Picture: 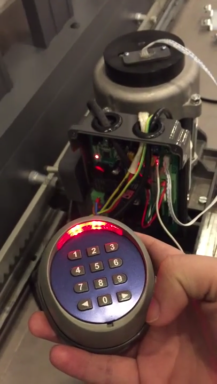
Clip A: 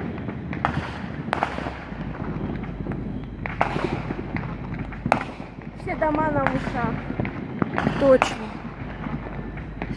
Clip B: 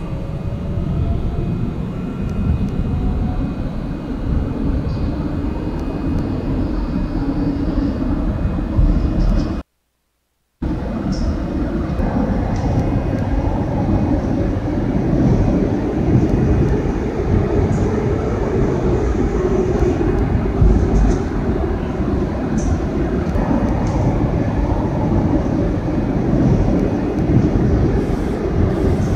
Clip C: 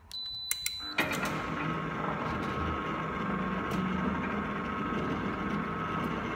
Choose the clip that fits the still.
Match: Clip C